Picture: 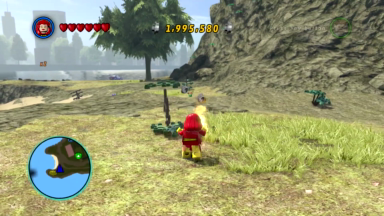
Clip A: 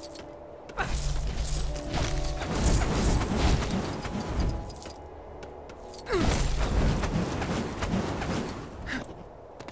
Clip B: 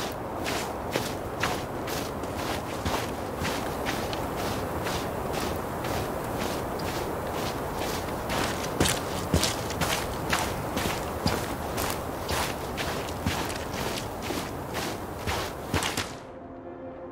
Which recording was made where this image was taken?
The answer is A